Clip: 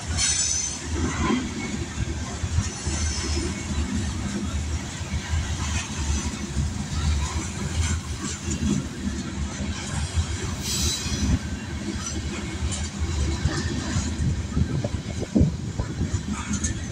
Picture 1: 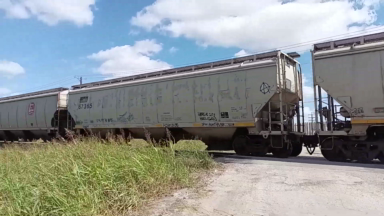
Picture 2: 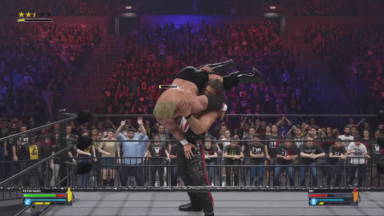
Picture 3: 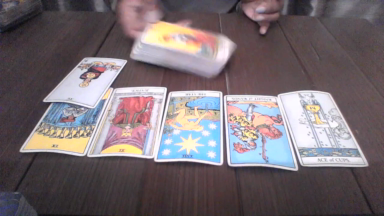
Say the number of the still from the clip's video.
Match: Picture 1